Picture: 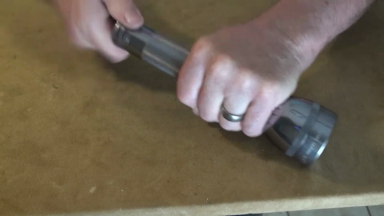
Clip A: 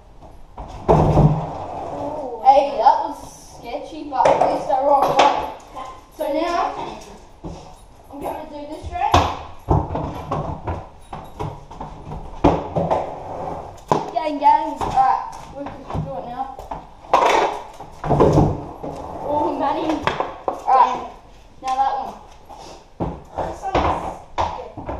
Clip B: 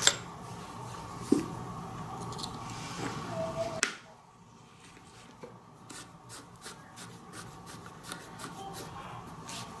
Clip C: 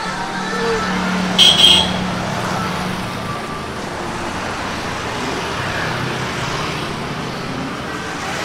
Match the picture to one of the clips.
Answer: B